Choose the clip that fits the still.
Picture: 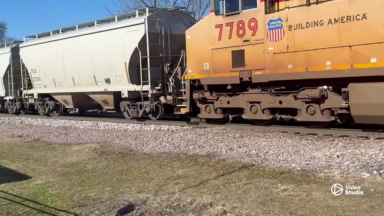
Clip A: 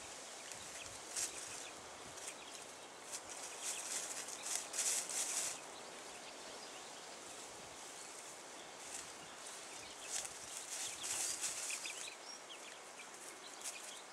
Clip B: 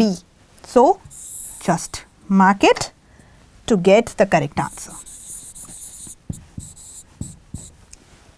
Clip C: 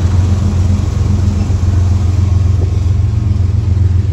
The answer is C